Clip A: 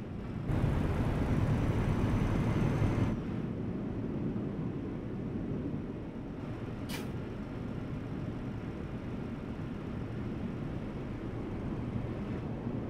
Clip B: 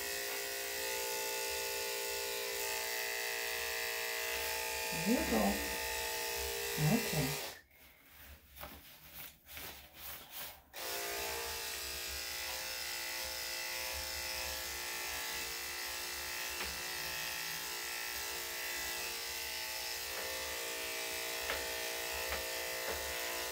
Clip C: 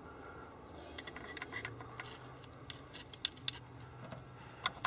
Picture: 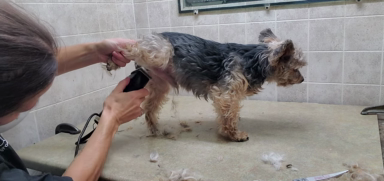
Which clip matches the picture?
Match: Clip B